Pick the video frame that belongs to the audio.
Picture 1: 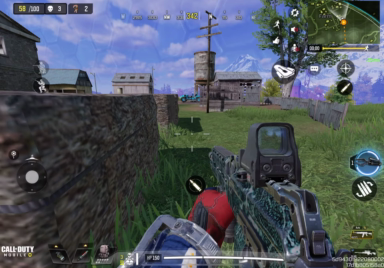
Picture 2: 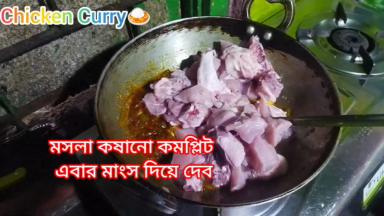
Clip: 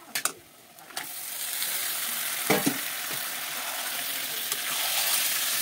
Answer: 2